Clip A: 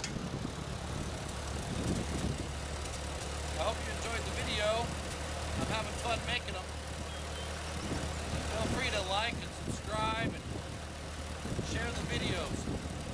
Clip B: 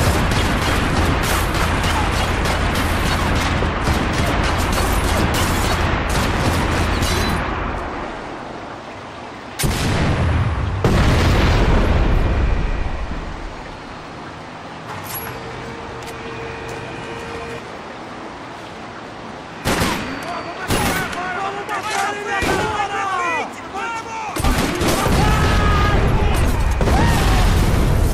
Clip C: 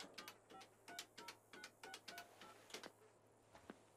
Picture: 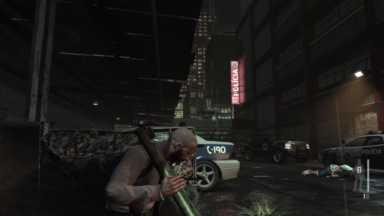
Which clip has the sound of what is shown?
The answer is B